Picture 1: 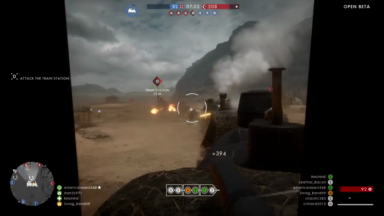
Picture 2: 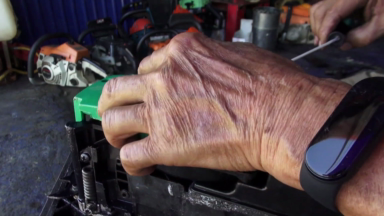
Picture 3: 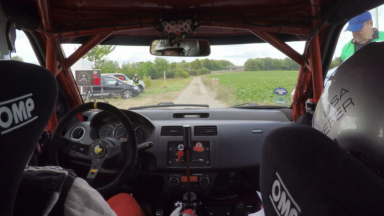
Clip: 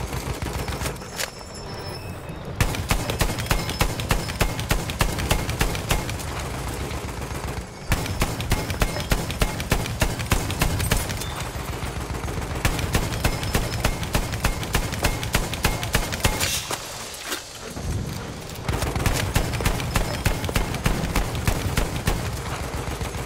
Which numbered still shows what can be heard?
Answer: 1